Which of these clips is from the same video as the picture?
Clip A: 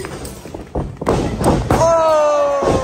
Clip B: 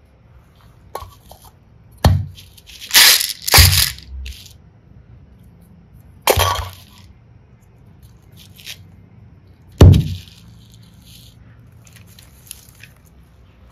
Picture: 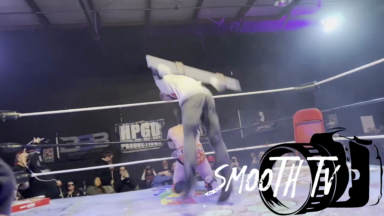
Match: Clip A